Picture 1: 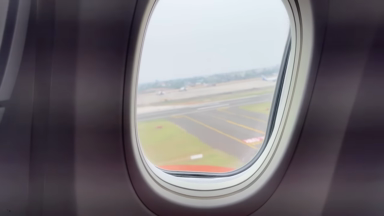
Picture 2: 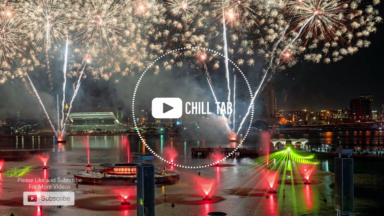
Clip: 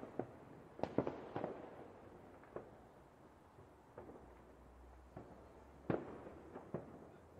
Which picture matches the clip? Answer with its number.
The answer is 2